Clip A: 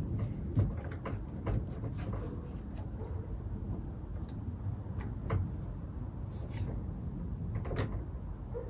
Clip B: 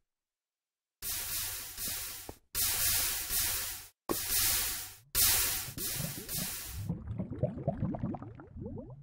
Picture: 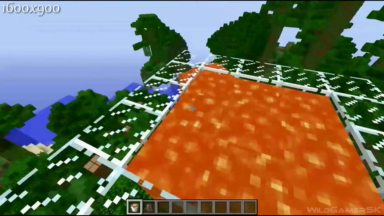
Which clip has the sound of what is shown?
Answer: B